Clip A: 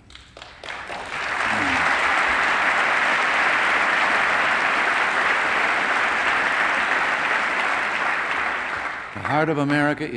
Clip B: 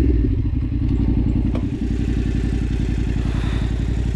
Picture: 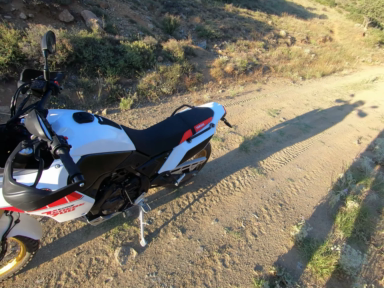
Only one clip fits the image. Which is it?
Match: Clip B